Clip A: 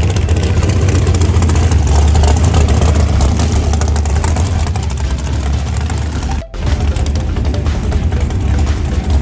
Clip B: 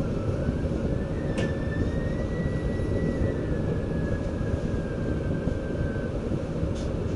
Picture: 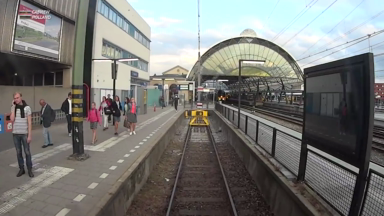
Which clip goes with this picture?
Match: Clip B